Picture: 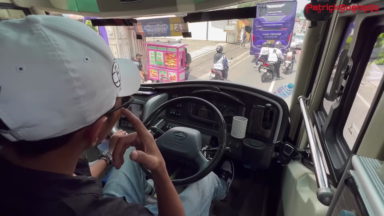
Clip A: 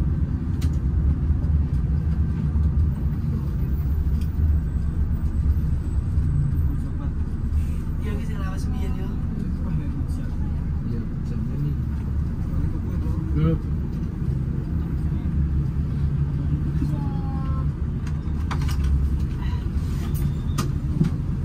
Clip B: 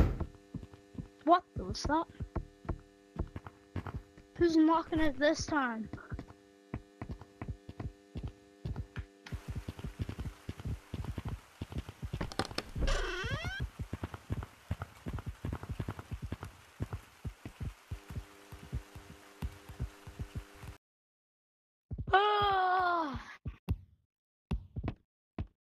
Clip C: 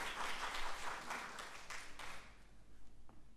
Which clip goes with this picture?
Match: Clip A